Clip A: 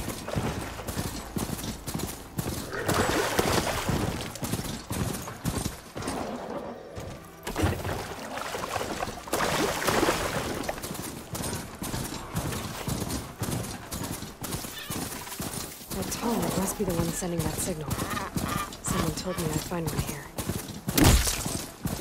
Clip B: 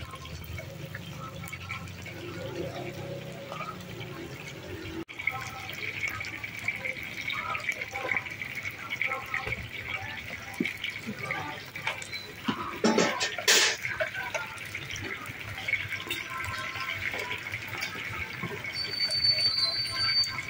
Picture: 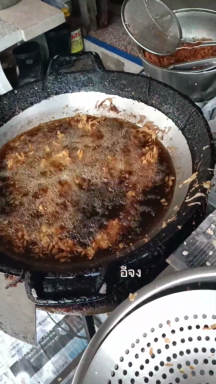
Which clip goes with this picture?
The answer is B